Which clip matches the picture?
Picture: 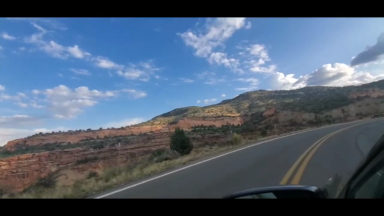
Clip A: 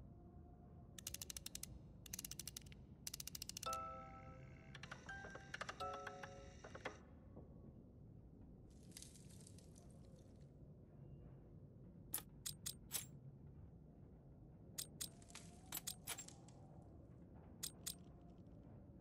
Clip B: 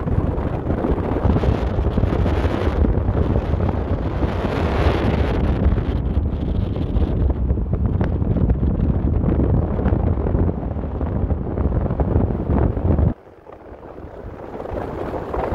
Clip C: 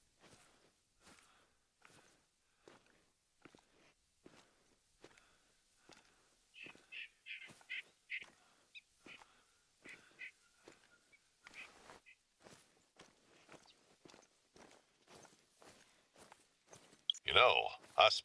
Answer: B